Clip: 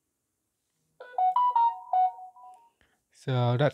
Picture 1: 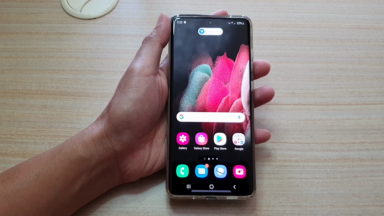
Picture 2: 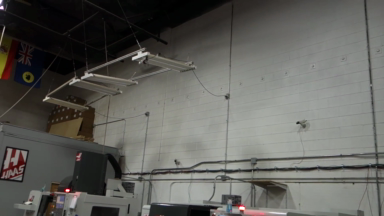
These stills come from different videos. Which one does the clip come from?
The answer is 1